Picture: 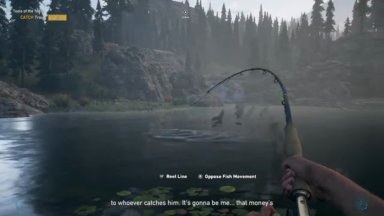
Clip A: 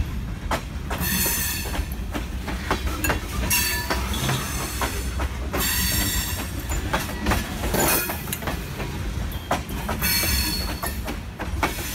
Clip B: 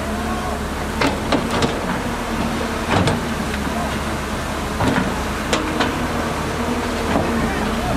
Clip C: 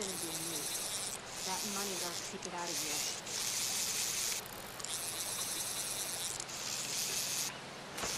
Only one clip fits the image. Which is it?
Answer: C